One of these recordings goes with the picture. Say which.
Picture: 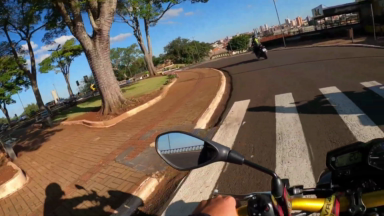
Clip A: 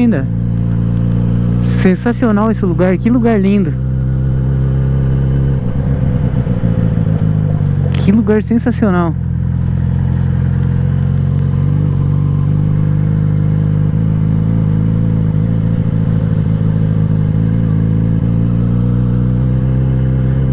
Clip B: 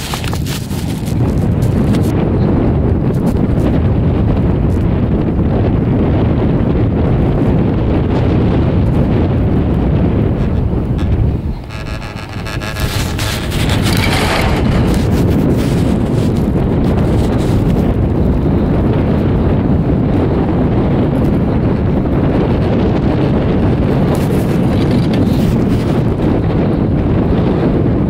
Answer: A